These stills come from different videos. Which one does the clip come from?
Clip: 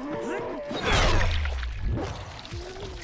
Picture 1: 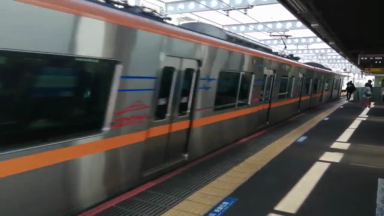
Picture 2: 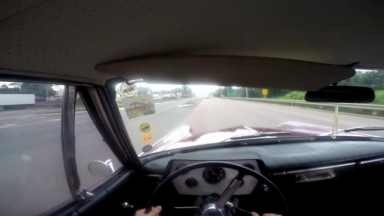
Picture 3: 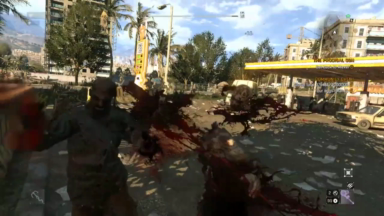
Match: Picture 3